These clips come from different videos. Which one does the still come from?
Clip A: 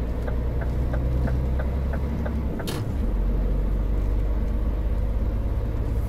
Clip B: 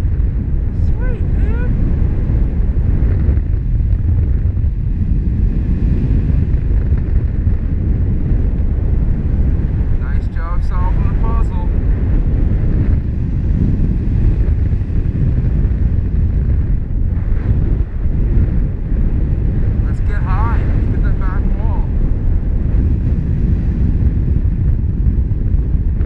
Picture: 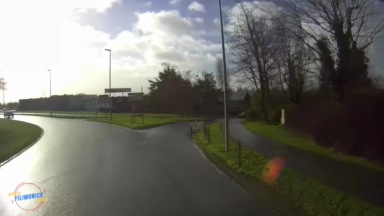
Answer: A